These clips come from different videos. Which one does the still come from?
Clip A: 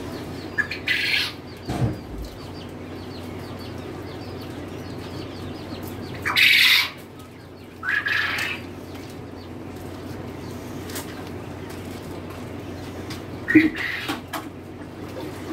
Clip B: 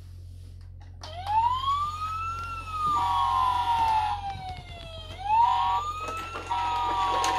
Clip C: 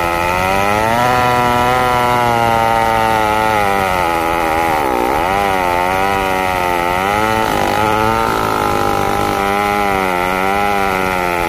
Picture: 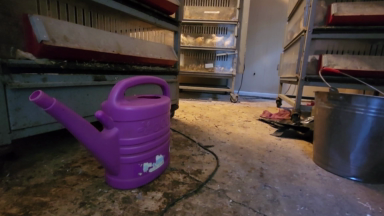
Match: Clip A